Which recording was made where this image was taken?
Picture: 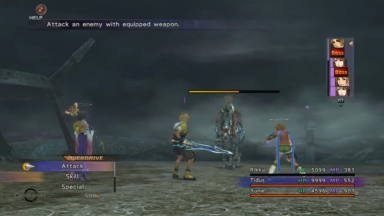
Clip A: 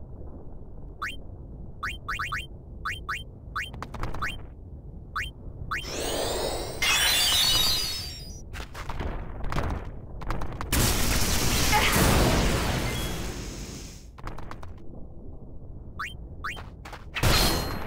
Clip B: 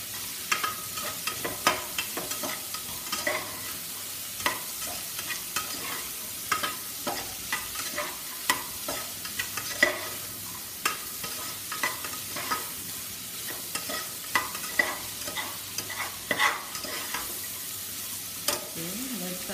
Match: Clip A